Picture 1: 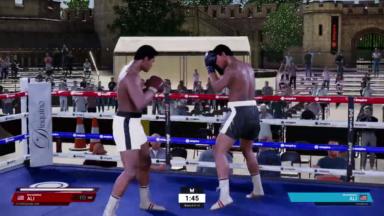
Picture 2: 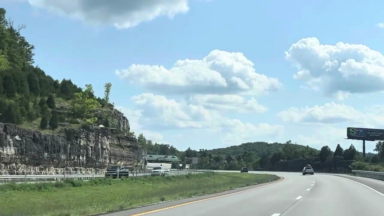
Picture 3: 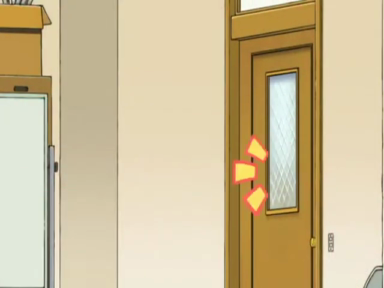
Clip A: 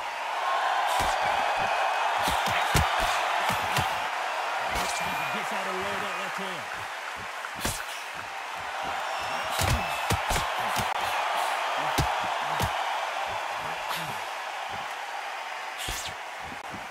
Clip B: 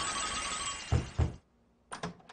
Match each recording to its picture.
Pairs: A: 1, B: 3